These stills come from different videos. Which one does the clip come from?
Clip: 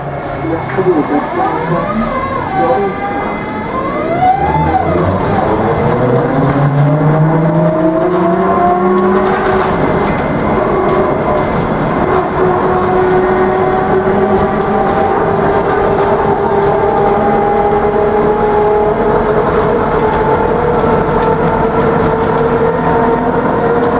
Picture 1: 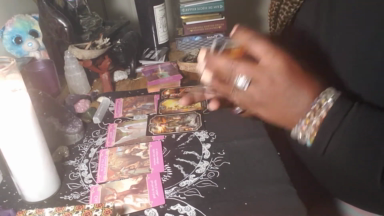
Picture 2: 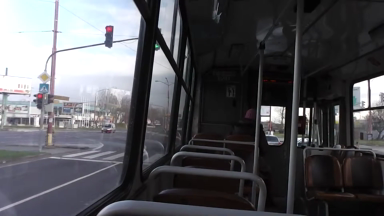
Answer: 2